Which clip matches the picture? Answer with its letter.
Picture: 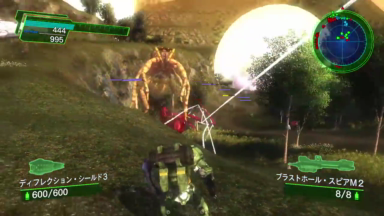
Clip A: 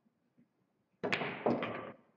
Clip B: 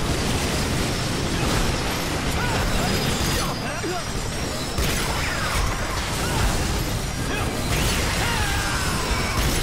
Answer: B